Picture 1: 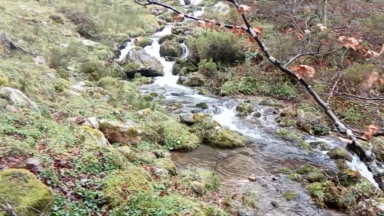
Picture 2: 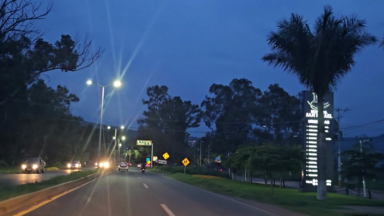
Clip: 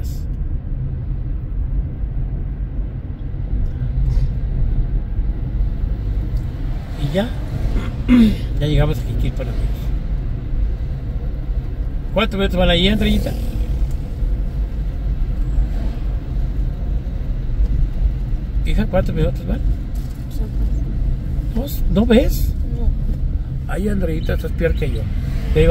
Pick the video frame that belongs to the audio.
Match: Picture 2